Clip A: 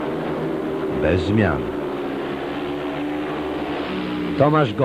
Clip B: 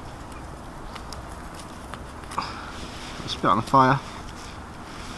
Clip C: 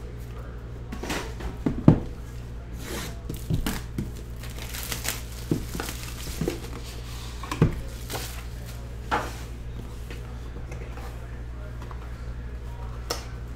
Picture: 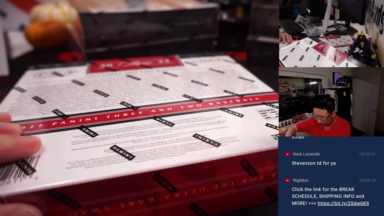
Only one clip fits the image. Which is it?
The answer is C